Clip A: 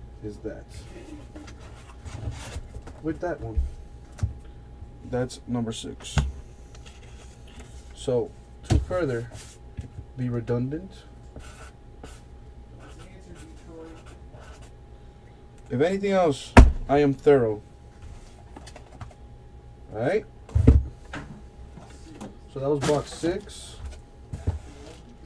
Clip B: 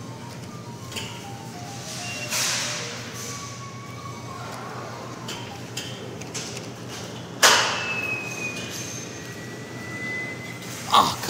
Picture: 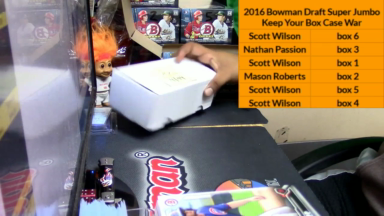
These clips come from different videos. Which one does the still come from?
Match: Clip A